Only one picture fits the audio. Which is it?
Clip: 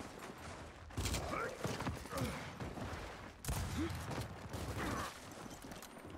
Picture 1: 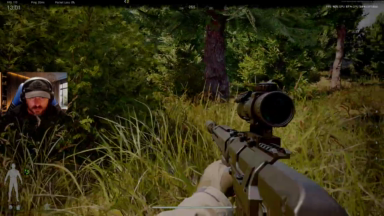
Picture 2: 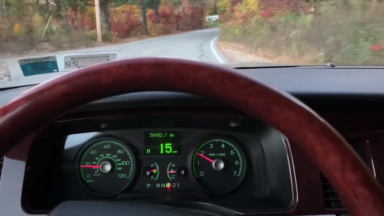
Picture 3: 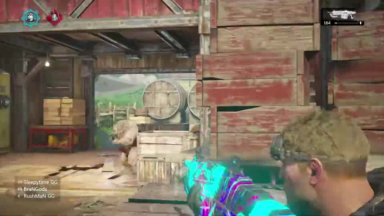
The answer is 3